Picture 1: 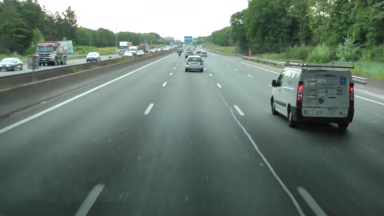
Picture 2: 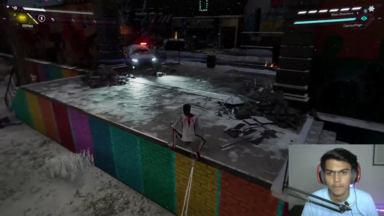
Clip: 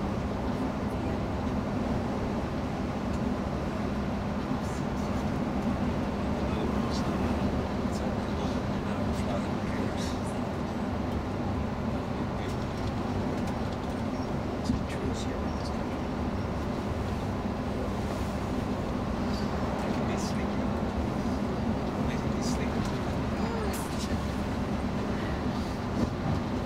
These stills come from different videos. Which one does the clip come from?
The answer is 1